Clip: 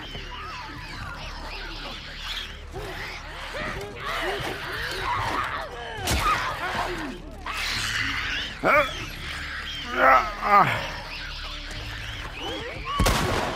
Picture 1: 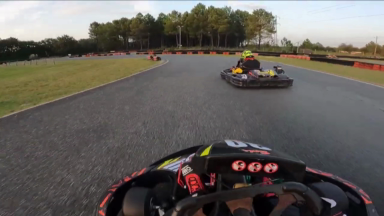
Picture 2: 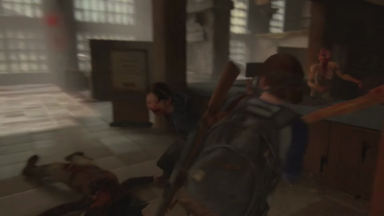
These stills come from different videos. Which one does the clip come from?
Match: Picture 2